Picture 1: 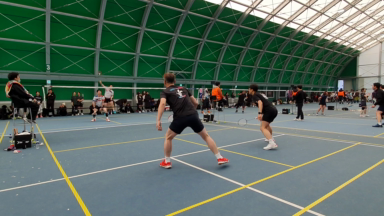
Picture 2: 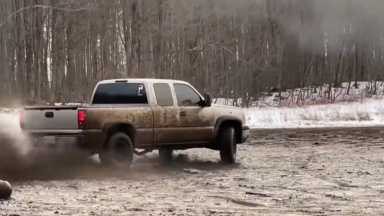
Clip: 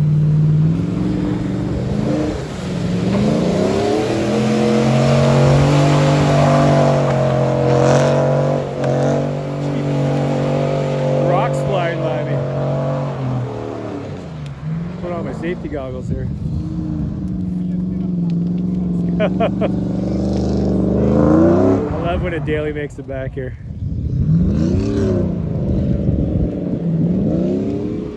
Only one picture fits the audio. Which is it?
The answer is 2